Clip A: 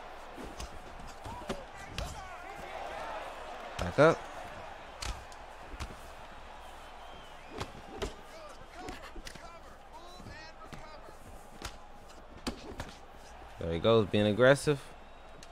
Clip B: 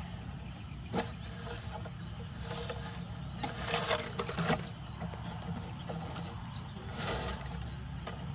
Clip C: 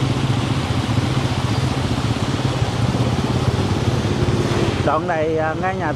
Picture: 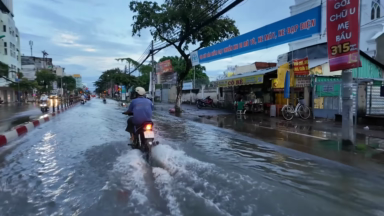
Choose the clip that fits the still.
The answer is C